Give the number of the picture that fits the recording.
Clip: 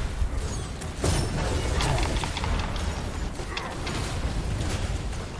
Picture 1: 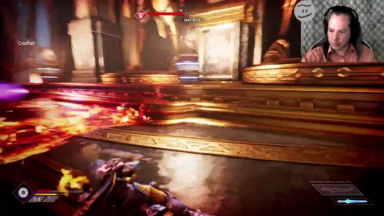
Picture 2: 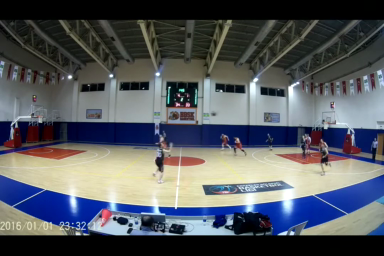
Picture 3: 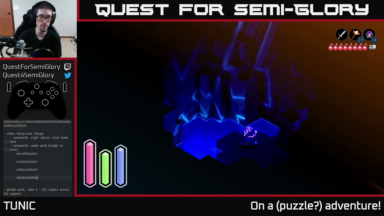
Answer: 1